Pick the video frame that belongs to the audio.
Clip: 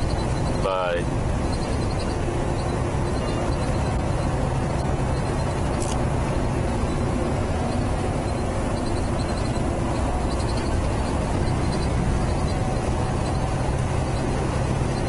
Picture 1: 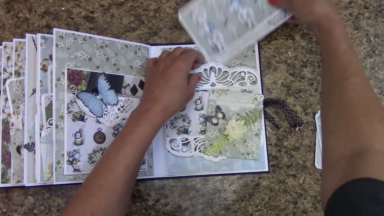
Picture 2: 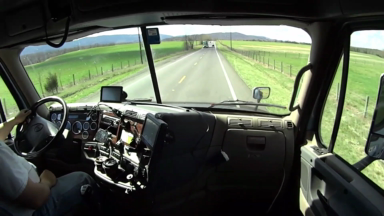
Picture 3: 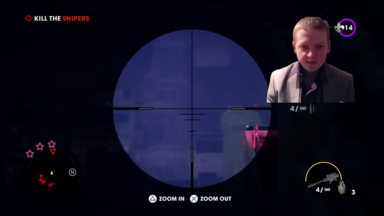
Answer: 2